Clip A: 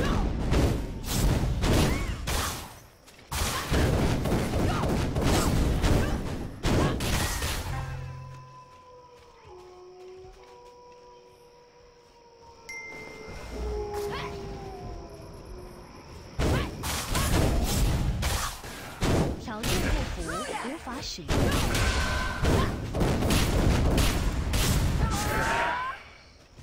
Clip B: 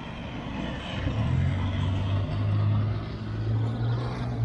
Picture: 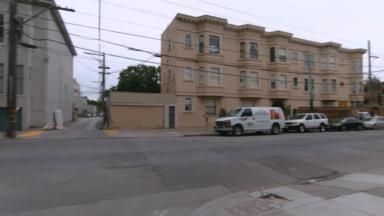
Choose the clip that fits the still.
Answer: B